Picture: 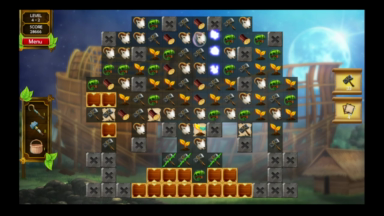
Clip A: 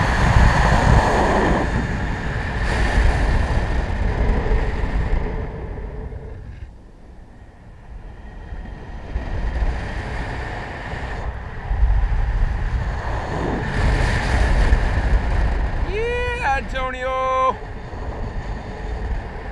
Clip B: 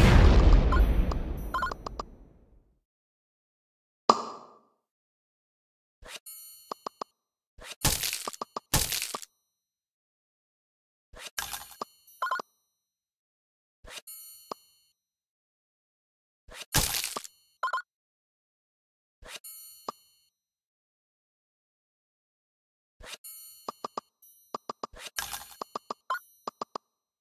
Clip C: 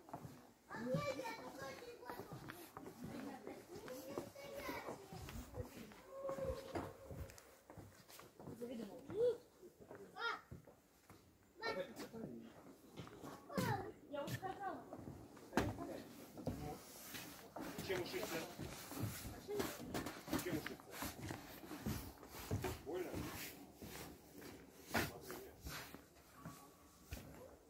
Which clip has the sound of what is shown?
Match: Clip B